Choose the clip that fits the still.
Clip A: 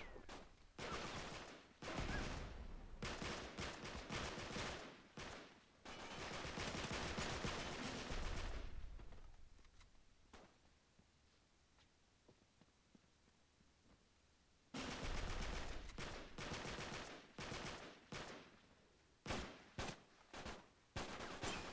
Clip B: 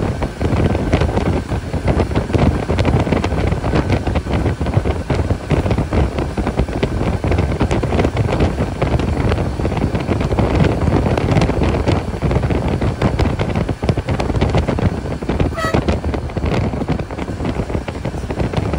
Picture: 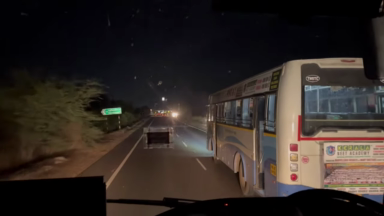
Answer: B